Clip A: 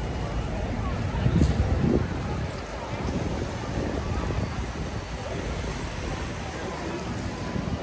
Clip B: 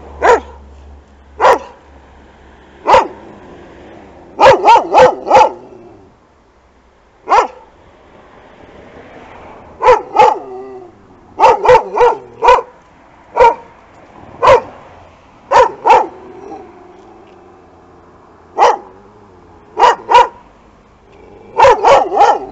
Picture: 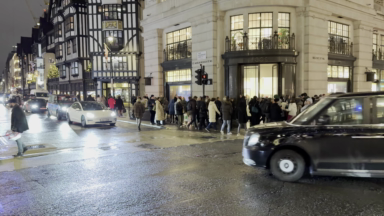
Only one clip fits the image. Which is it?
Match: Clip A